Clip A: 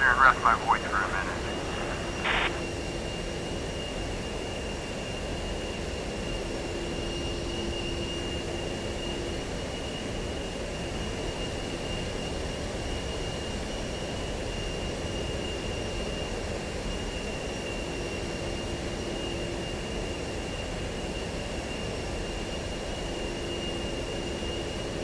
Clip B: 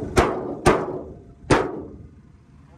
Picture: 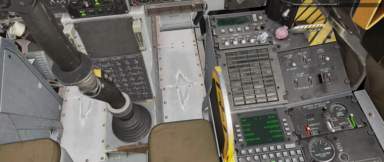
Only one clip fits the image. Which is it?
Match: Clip A